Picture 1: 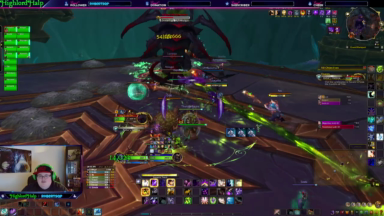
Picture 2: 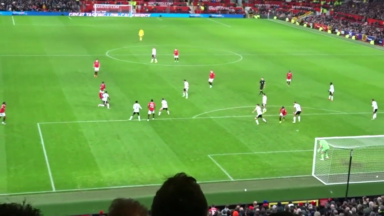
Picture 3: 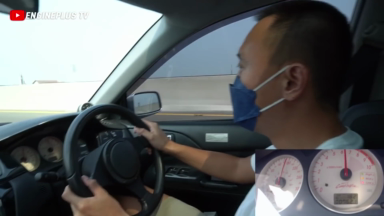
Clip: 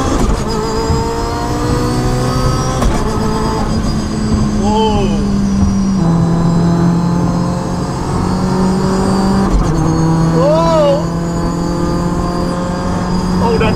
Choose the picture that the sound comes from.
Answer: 3